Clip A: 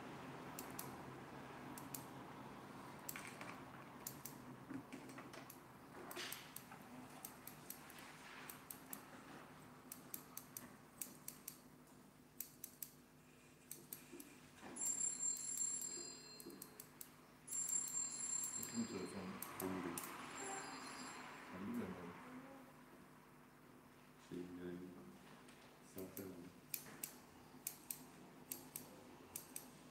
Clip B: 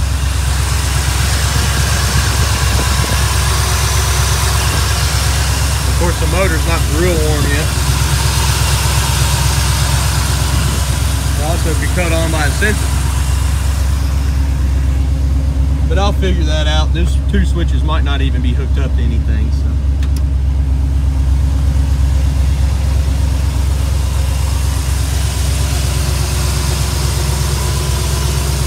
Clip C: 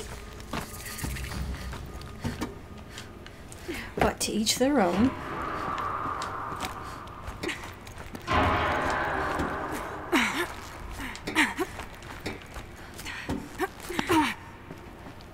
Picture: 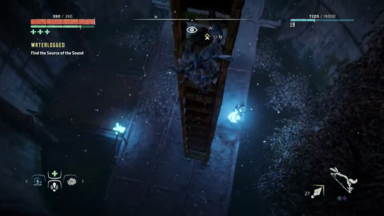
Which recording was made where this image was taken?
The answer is C